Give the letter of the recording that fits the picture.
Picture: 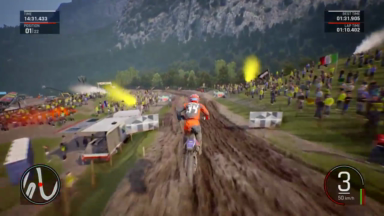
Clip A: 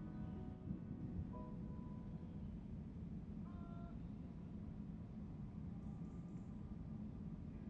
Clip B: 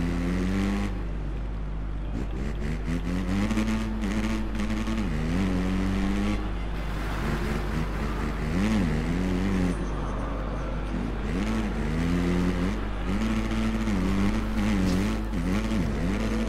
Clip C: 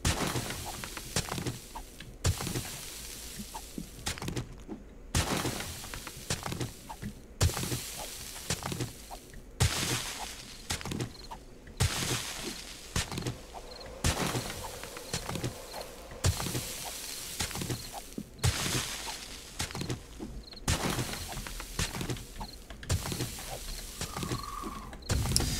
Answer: B